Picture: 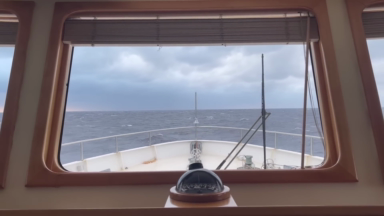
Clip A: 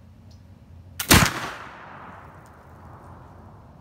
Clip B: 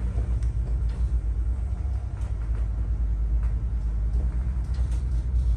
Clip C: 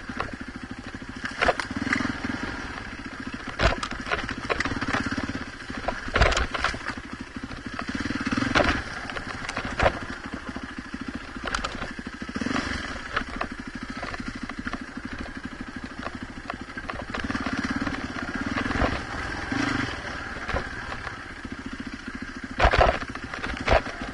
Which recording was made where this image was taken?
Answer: B